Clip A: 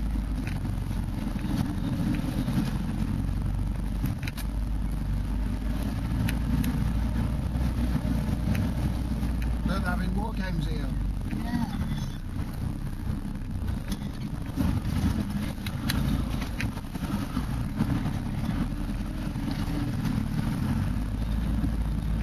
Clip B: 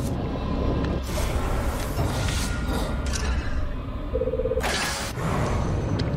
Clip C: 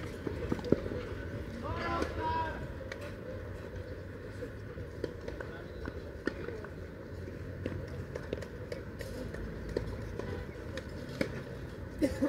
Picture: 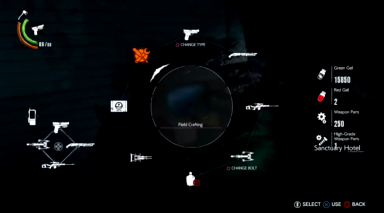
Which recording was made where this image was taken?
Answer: B